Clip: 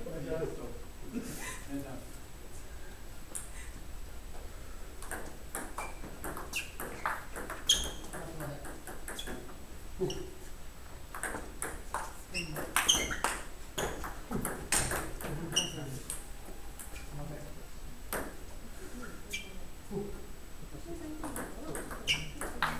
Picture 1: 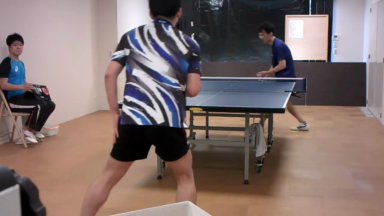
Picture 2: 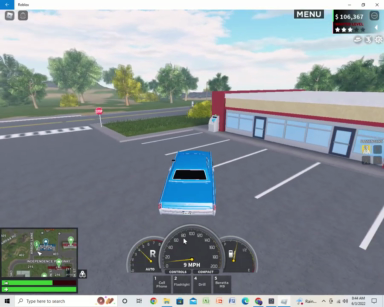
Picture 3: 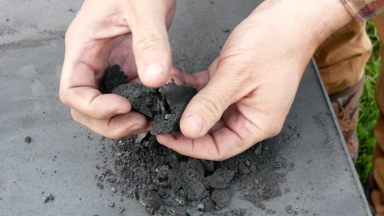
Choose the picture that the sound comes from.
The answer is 1